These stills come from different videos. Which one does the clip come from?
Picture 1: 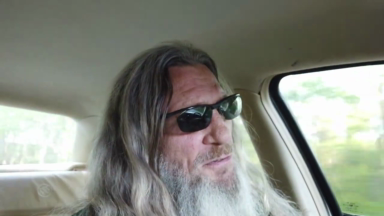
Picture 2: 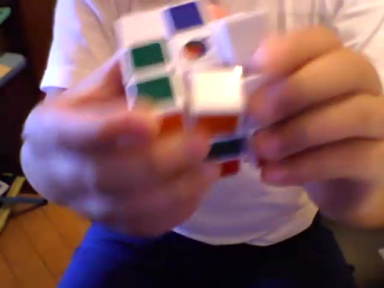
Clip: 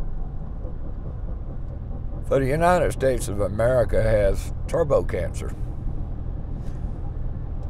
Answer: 1